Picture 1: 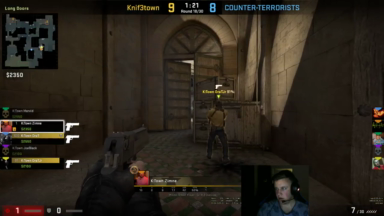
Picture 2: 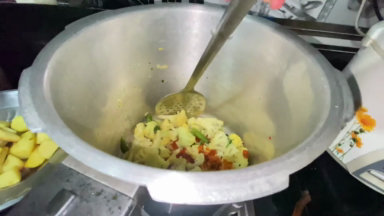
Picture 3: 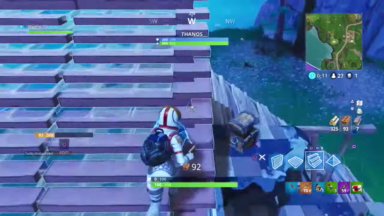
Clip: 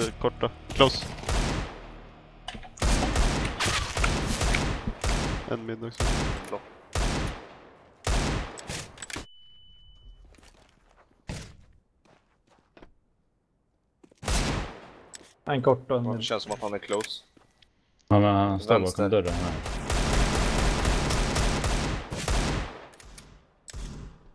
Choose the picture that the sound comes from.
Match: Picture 1